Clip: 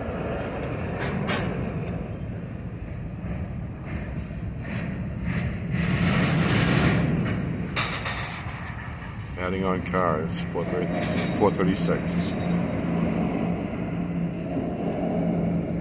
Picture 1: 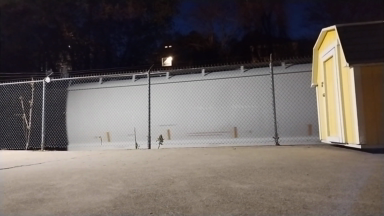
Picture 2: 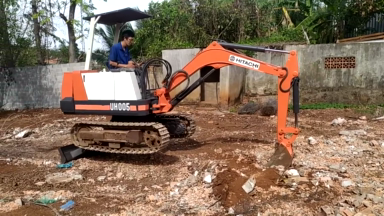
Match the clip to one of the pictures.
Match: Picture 1